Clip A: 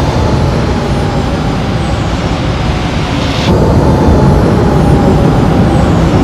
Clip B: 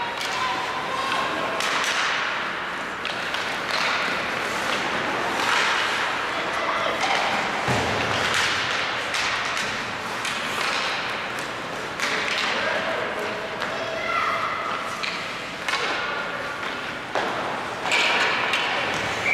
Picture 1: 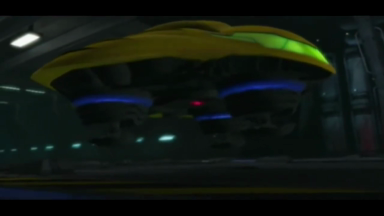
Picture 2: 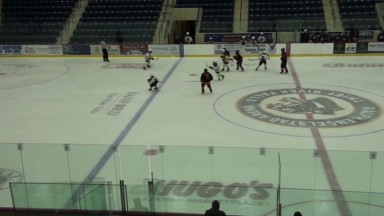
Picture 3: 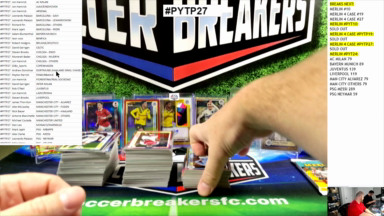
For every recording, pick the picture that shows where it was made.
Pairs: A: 1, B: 2